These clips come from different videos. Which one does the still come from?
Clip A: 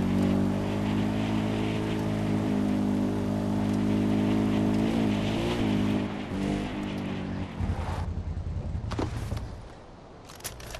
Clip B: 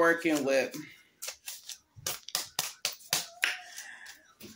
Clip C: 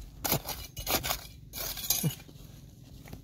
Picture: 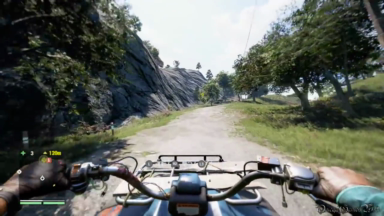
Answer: A